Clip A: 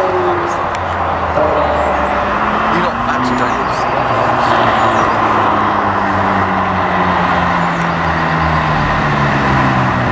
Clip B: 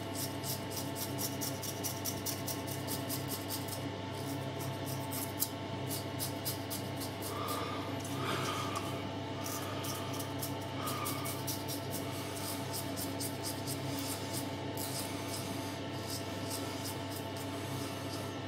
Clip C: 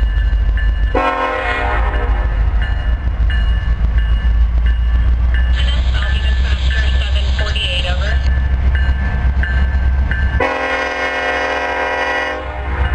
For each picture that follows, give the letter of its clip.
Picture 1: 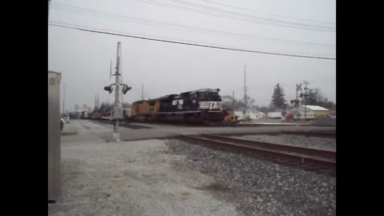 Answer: C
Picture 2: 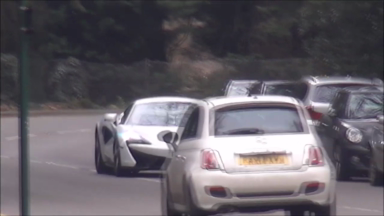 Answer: A